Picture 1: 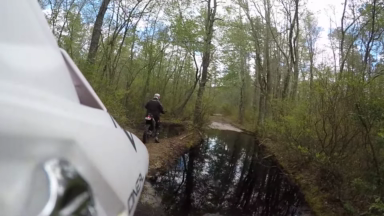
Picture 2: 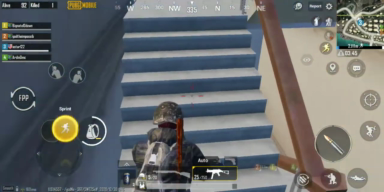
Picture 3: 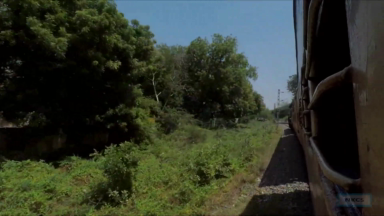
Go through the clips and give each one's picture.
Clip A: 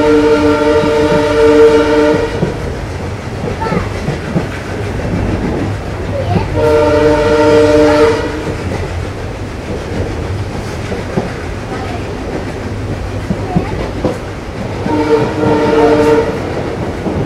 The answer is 3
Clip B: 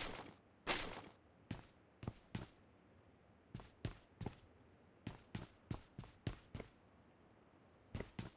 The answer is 2